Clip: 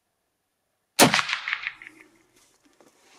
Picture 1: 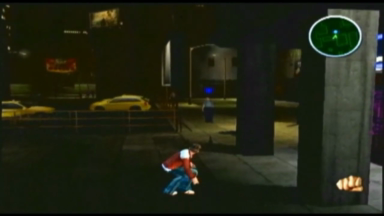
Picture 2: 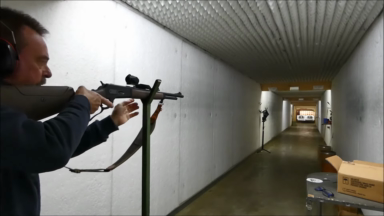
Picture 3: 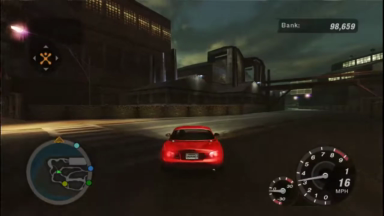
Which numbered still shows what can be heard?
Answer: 2